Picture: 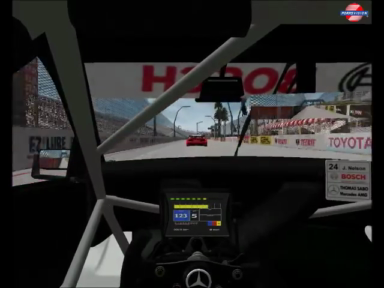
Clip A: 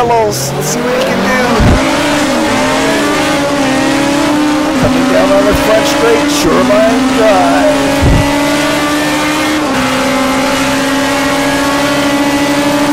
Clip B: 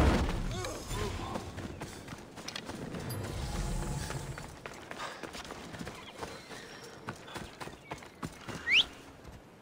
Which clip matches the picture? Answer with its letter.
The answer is A